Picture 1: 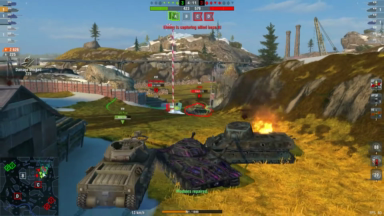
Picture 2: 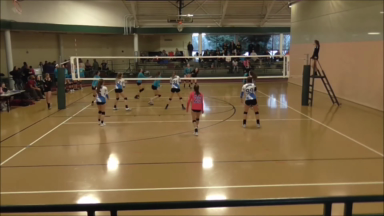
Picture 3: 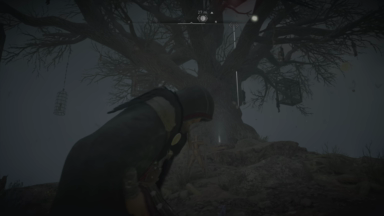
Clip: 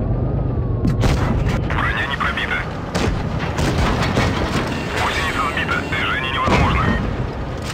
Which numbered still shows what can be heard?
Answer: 1